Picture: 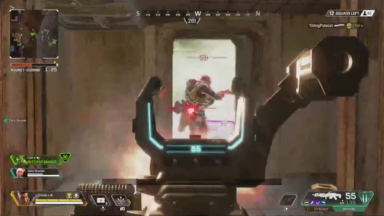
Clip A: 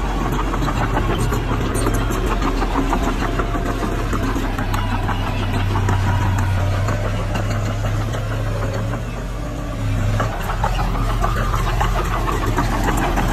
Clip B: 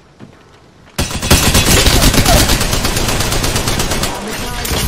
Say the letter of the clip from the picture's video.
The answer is B